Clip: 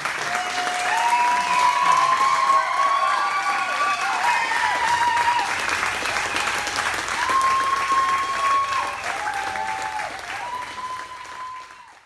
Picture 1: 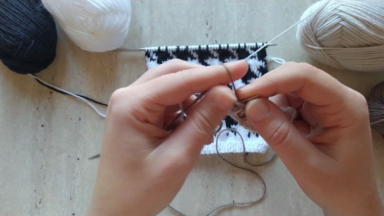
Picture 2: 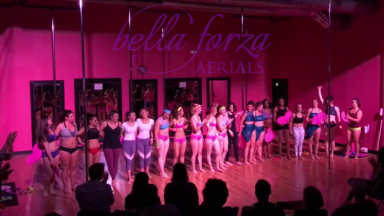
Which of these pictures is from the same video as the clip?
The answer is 2